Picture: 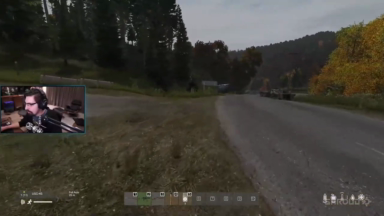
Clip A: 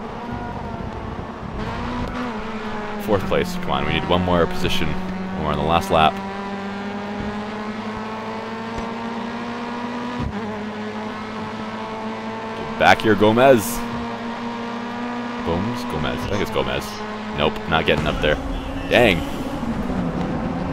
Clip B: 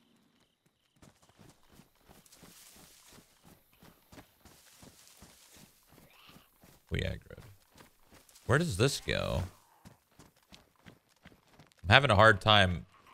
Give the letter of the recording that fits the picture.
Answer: B